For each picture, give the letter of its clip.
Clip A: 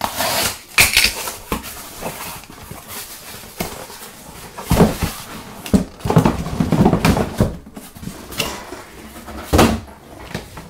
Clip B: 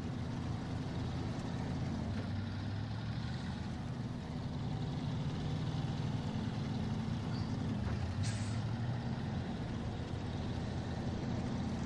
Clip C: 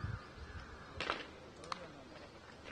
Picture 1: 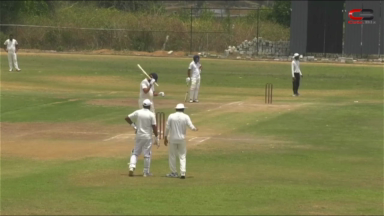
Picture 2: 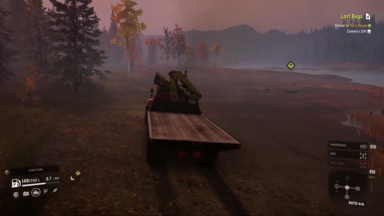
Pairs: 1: C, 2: B